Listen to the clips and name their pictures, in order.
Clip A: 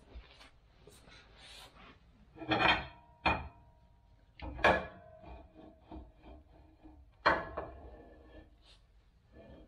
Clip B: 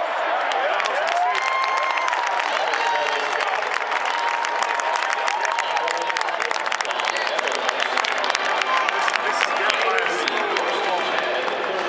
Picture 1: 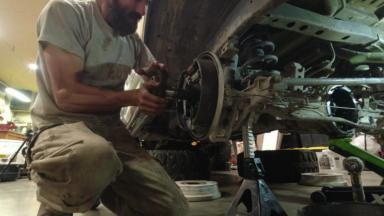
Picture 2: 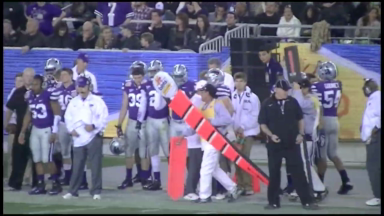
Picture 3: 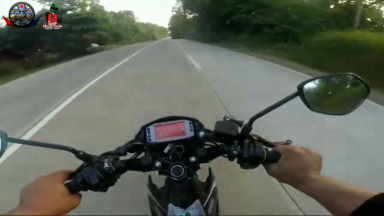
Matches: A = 1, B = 2